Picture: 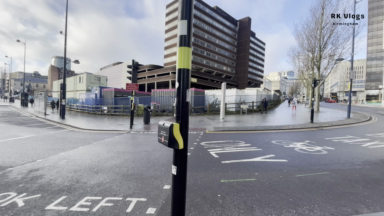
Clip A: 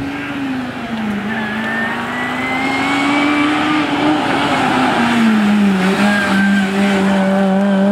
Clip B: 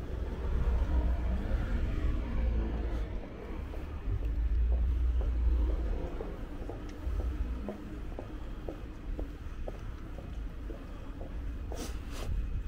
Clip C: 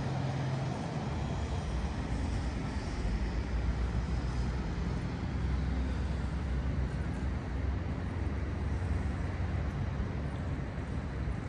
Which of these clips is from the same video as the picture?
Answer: C